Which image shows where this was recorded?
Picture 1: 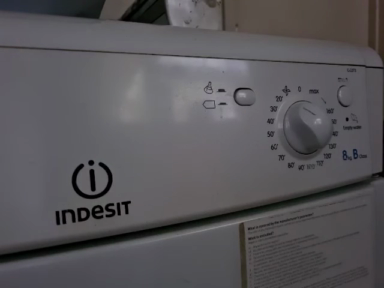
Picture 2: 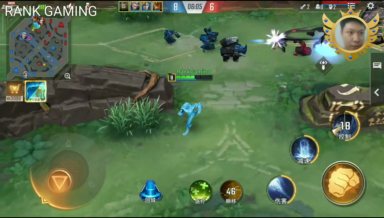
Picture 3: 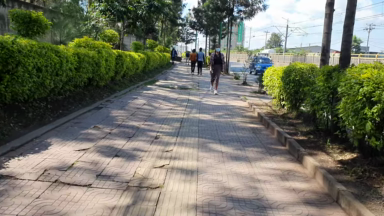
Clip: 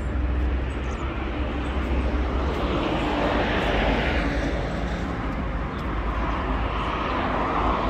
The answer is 3